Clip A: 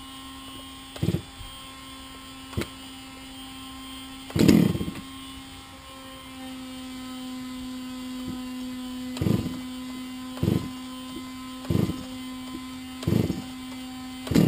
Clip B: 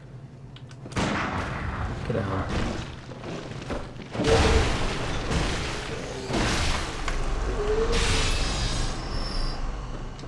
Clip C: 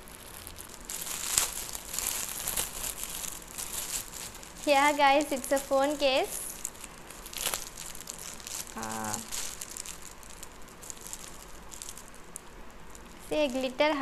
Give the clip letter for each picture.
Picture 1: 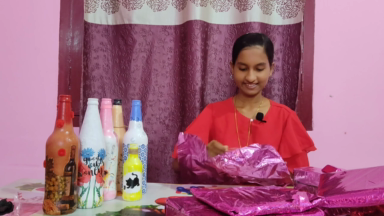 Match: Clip C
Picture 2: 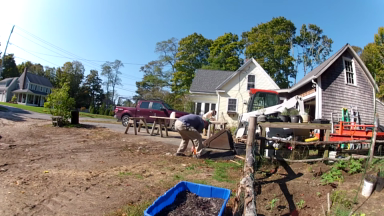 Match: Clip A